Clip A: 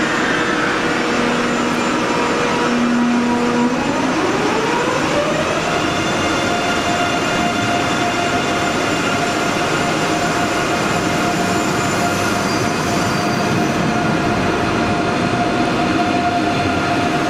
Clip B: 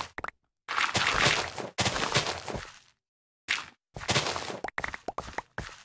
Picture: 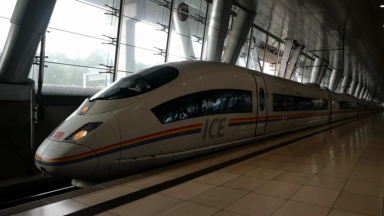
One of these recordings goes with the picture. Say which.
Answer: A